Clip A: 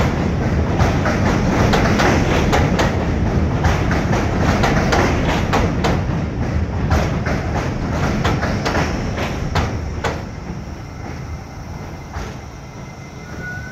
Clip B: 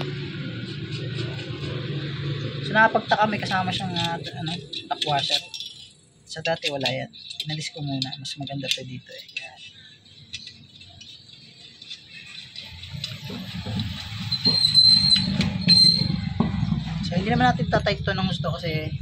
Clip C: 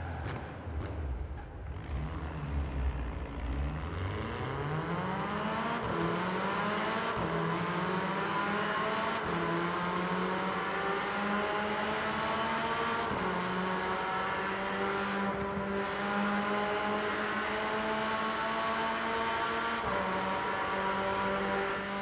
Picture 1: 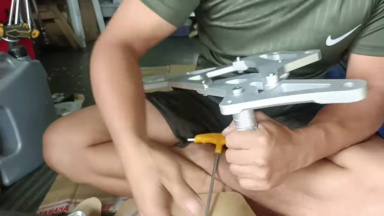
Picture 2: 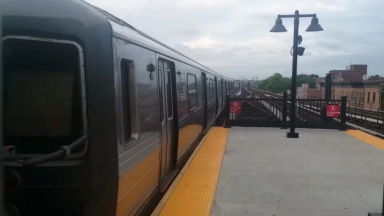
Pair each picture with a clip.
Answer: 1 B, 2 A